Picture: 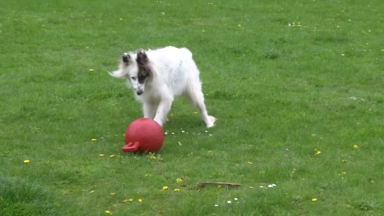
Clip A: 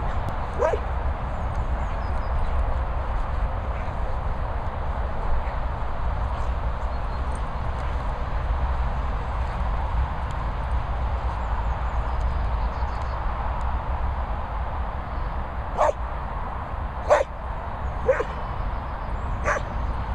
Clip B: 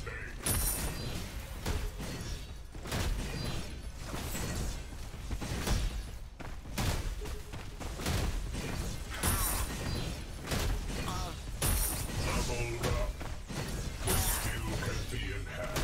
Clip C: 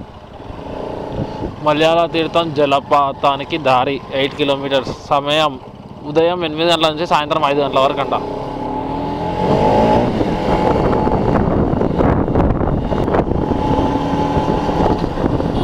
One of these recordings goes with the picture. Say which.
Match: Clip A